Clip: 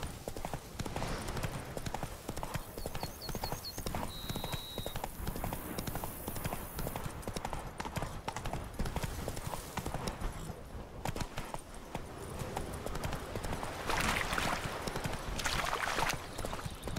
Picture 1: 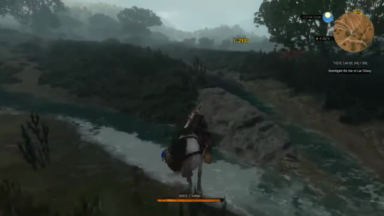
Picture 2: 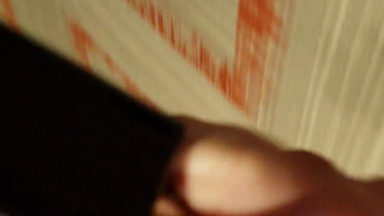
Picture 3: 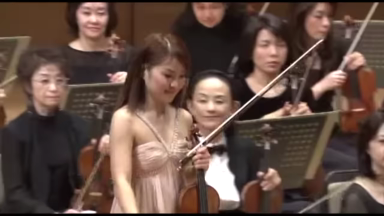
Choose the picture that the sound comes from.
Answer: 1